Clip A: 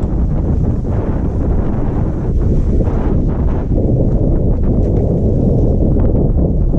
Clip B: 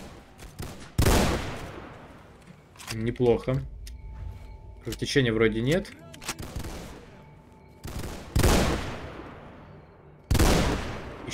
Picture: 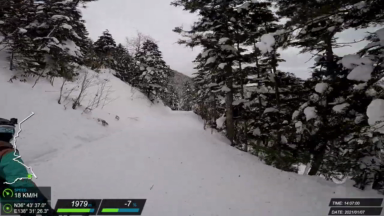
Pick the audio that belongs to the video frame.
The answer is A